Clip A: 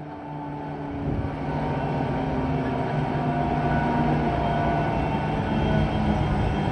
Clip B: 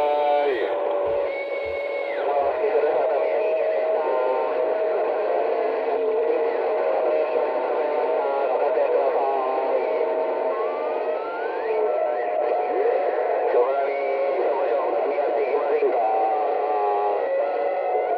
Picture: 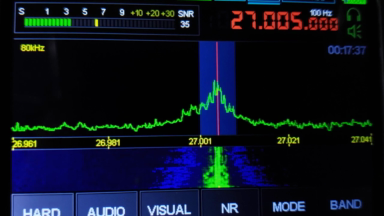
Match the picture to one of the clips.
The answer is B